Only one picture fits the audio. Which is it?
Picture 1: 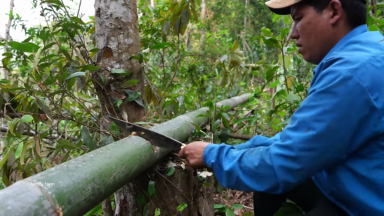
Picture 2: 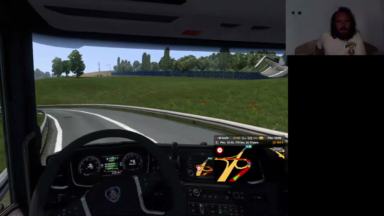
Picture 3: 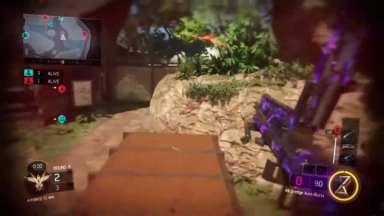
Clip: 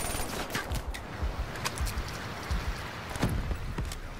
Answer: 3